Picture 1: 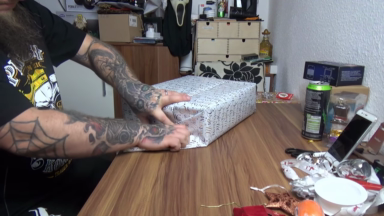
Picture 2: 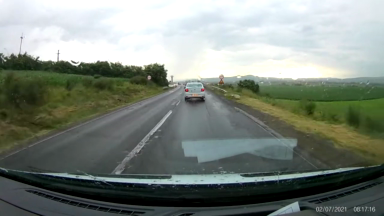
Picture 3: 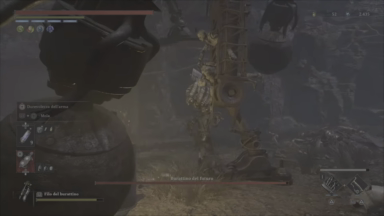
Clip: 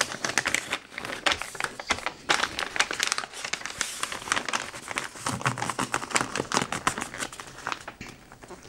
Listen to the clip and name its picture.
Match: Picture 1